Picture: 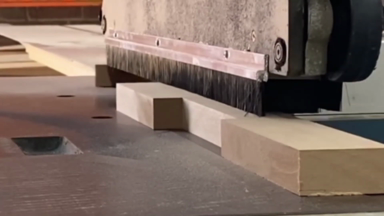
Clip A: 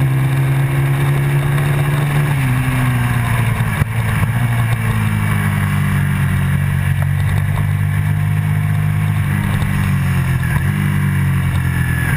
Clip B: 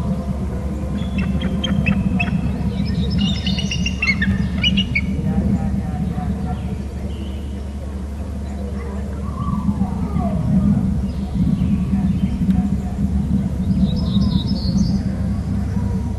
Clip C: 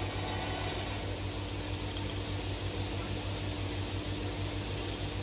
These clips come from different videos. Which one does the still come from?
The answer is C